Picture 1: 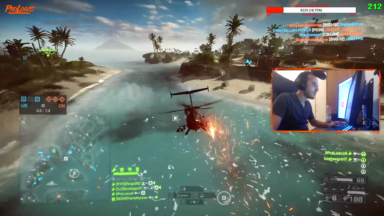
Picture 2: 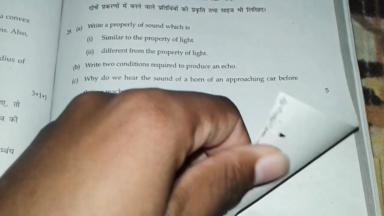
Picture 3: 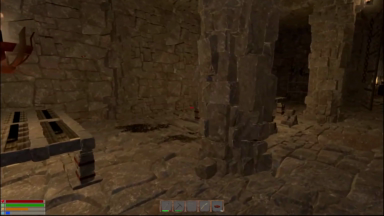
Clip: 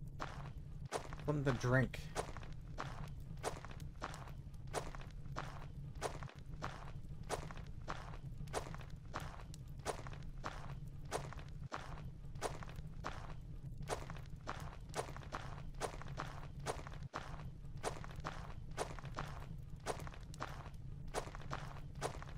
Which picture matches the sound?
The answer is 3